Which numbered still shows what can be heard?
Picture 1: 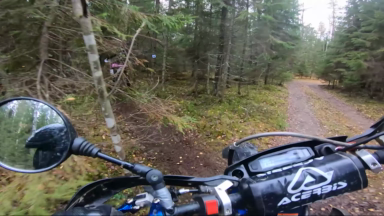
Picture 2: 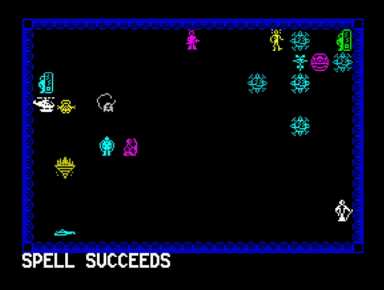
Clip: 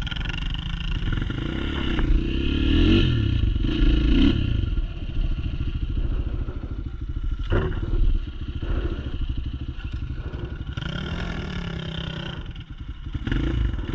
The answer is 1